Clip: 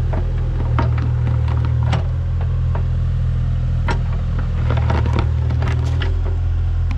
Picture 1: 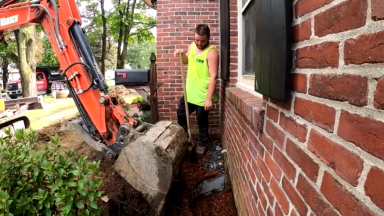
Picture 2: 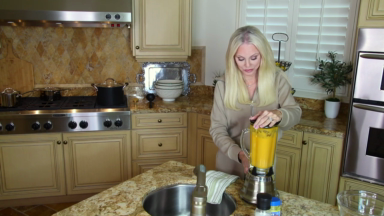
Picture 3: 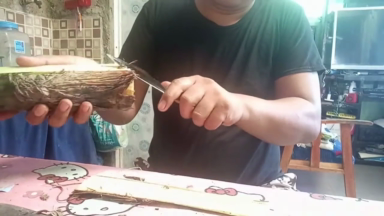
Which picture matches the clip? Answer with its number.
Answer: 1